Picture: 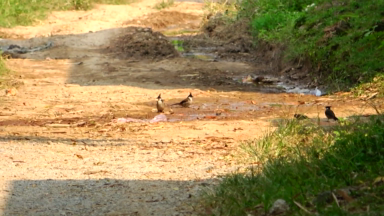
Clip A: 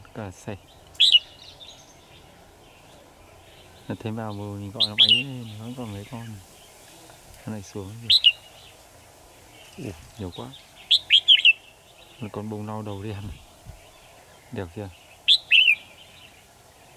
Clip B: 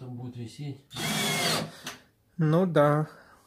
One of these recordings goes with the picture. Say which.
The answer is A